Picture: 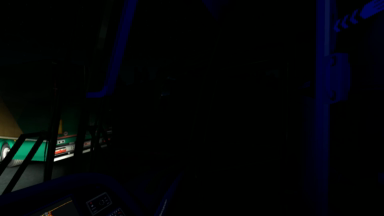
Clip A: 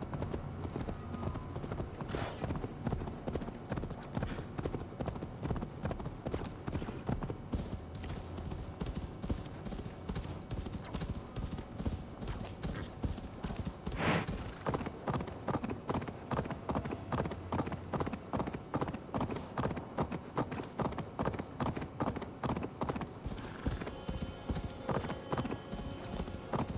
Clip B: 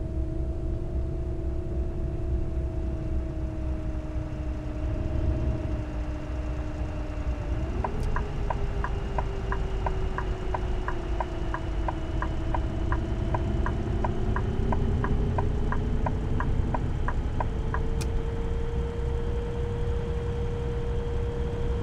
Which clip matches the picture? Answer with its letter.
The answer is B